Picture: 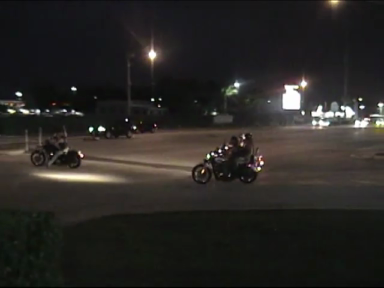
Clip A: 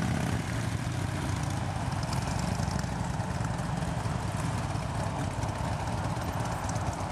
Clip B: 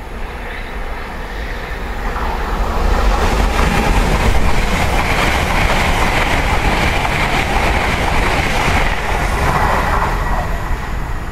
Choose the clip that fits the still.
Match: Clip A